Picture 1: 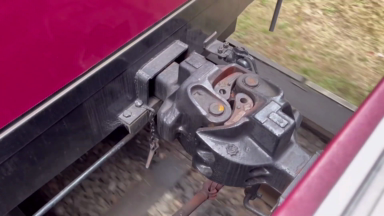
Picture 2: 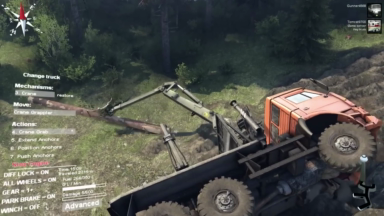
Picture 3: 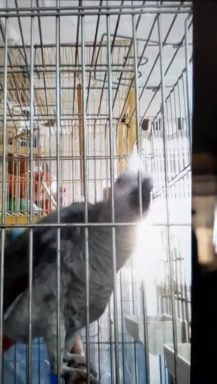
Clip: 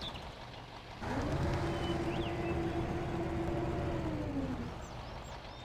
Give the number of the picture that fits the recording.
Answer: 2